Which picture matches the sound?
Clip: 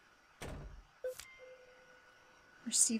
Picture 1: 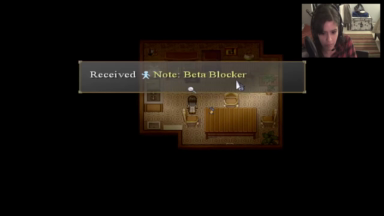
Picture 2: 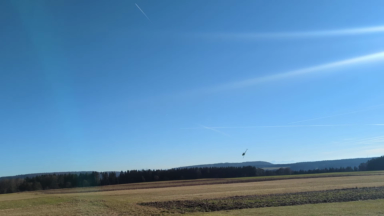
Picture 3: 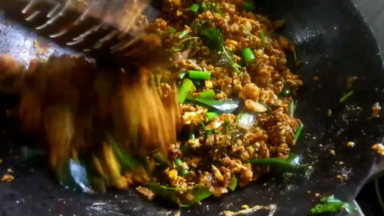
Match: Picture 1